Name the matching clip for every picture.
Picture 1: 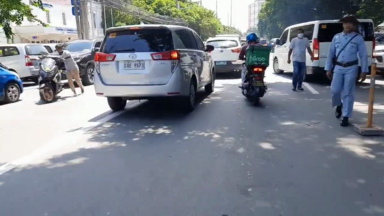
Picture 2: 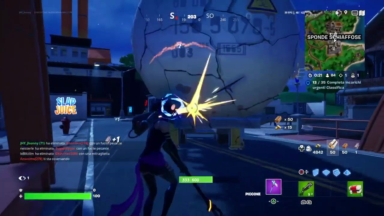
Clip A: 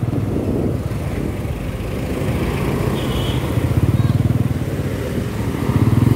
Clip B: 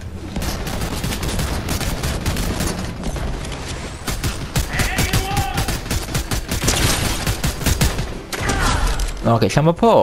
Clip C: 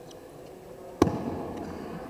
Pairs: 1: A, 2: B